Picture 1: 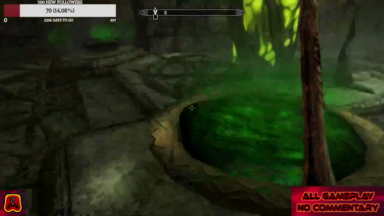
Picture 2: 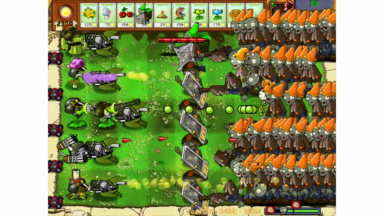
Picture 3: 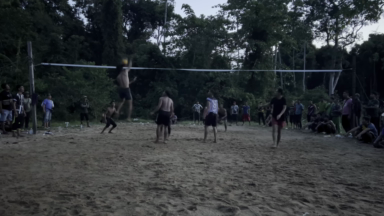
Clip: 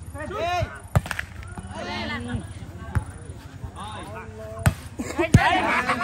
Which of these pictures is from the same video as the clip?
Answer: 3